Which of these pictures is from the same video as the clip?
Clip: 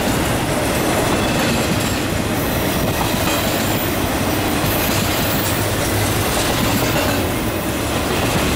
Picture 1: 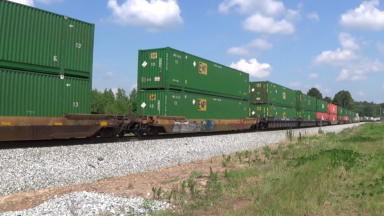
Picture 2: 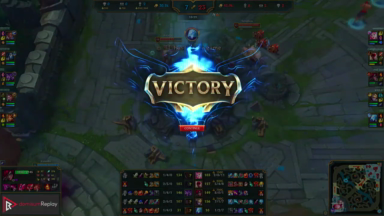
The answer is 1